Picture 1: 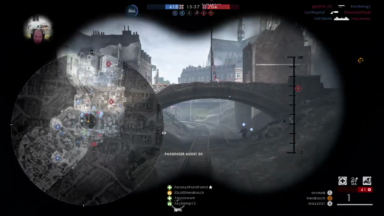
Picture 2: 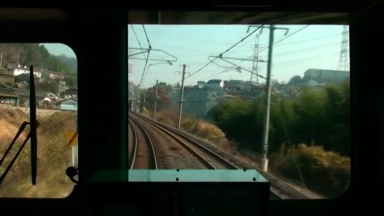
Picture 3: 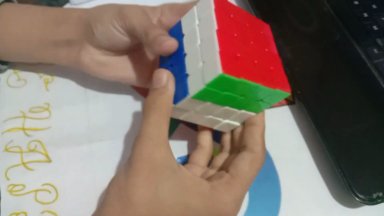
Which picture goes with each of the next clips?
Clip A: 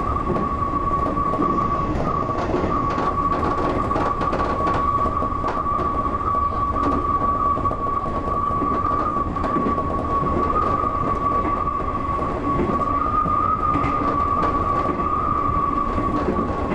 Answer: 2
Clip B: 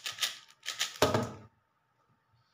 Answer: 3